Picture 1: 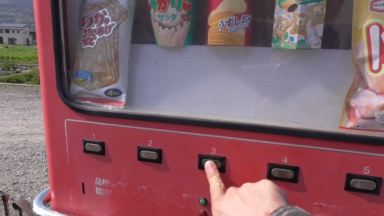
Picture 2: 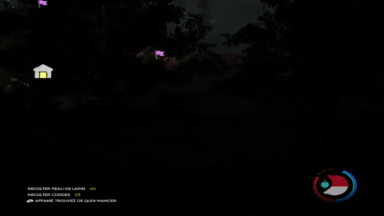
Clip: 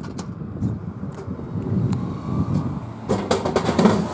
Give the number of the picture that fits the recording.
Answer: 1